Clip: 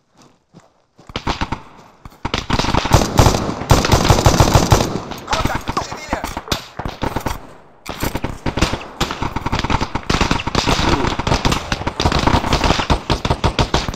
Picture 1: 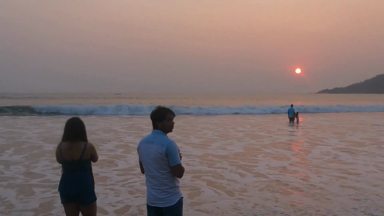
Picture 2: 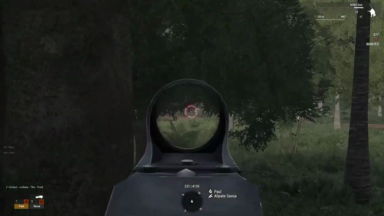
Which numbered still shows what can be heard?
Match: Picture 2